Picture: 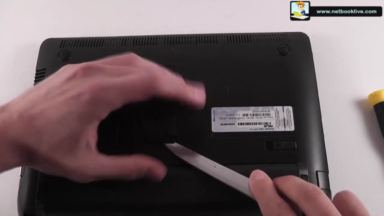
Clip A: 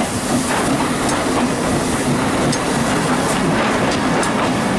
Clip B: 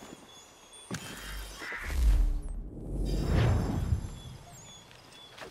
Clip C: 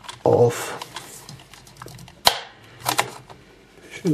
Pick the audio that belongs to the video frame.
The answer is C